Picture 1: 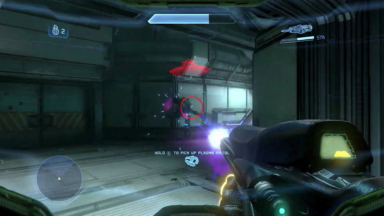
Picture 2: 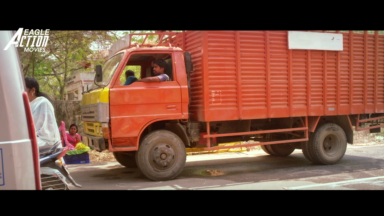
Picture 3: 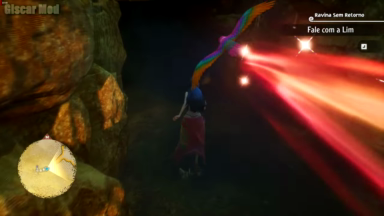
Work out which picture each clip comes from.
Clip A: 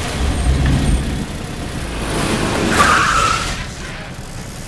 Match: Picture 2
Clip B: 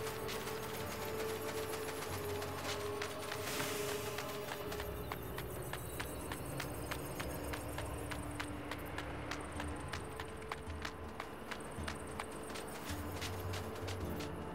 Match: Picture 3